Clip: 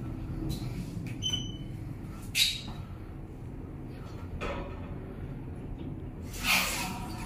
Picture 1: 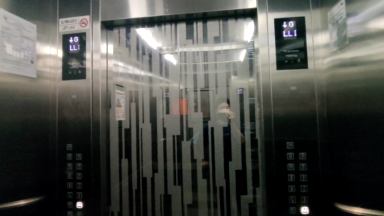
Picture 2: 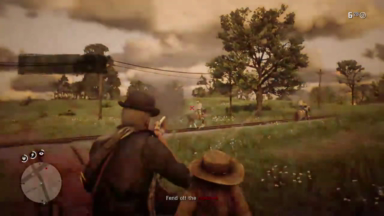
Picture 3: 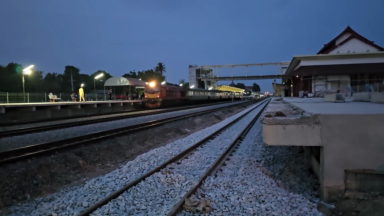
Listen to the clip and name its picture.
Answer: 1